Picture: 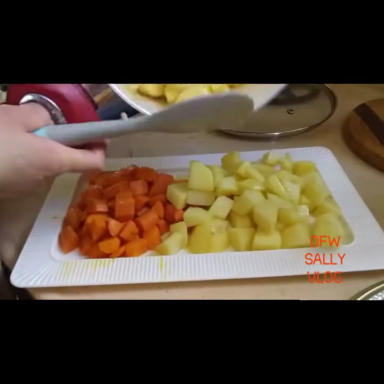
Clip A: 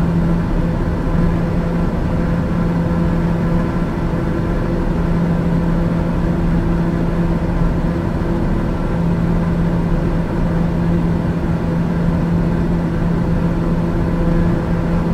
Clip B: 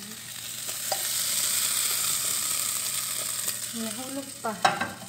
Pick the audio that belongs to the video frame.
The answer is B